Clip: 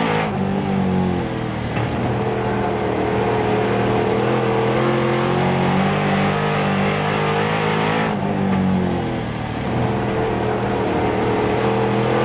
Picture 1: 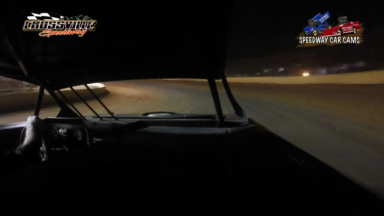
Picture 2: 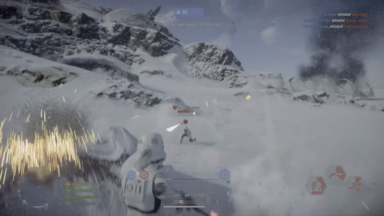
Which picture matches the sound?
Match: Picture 1